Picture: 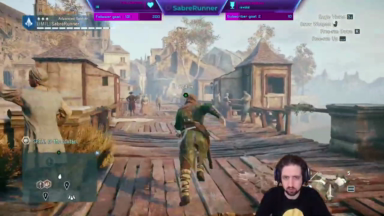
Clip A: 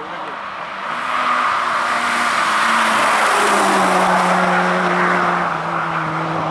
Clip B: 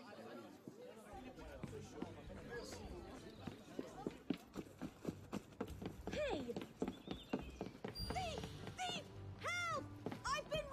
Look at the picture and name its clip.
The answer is B